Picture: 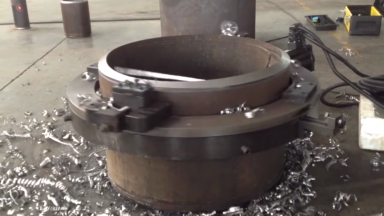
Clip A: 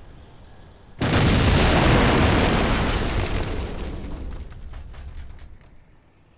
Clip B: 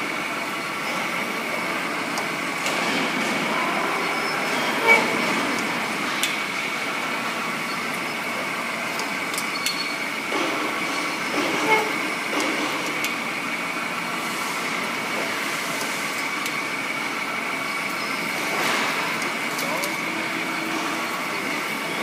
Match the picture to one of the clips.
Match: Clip B